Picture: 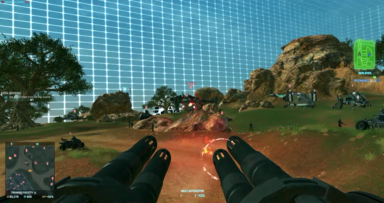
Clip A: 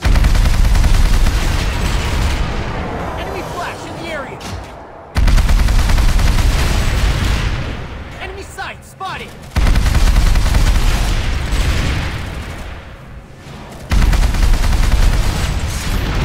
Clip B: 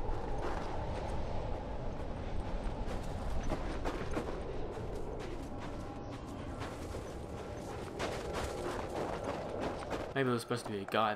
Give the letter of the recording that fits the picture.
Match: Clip A